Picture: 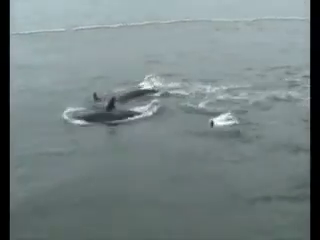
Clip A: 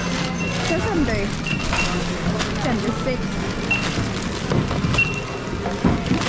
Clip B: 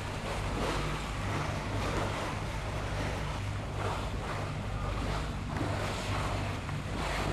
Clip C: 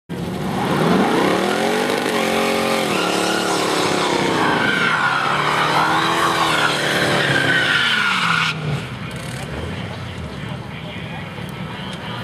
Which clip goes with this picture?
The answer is B